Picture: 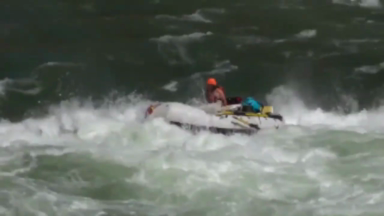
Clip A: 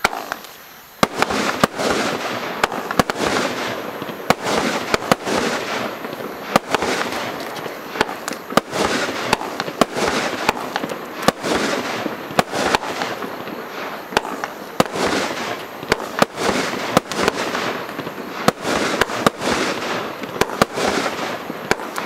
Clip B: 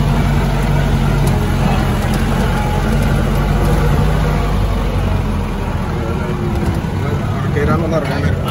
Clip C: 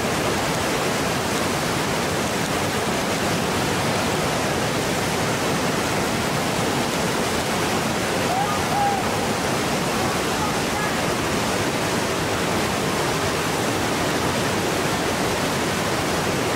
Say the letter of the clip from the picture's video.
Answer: C